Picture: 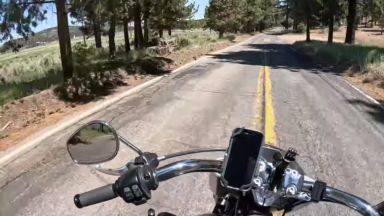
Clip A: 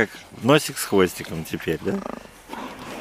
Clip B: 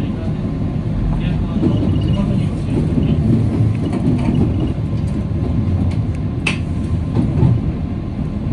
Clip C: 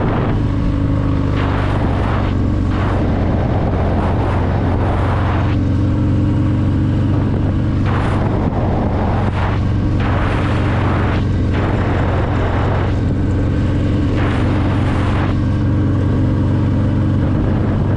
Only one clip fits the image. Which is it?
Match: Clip C